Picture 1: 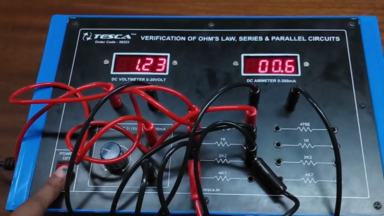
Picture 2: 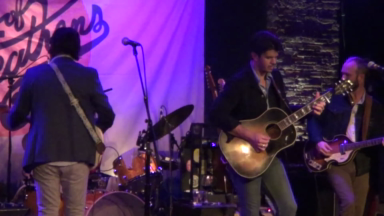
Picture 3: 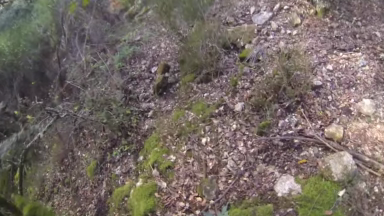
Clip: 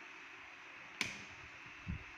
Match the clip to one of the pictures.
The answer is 1